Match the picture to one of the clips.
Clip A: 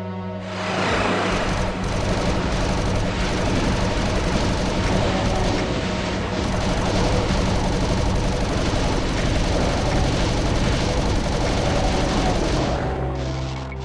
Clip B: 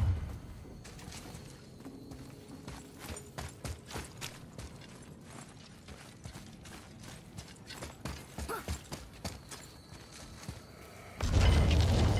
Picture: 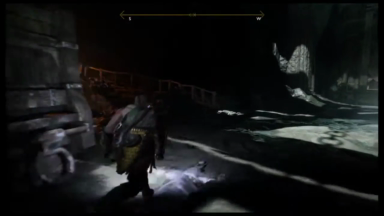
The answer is B